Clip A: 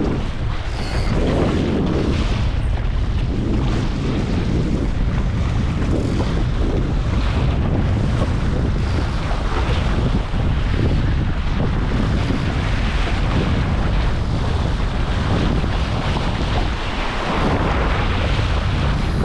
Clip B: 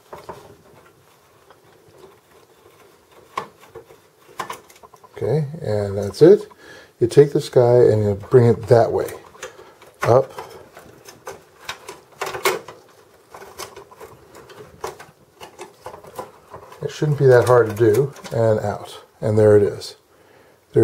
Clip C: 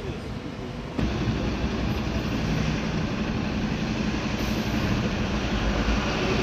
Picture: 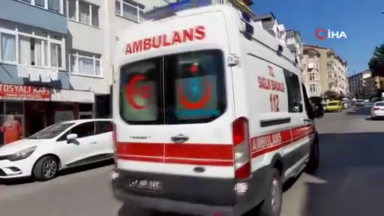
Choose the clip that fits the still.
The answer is C